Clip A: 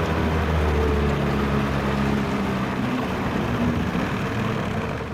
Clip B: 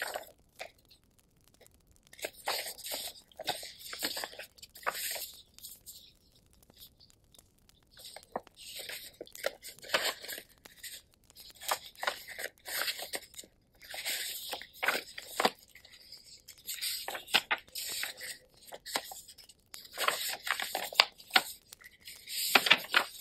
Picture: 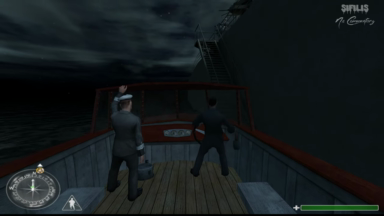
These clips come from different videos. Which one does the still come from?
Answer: A